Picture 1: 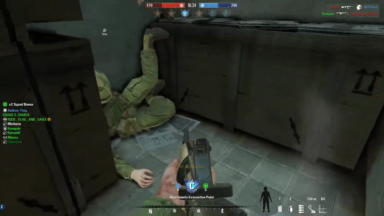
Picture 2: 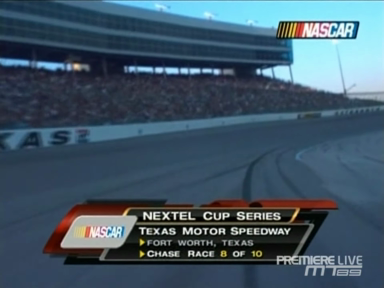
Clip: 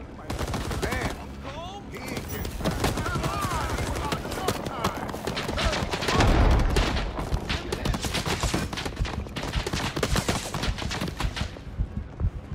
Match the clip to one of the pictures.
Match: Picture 1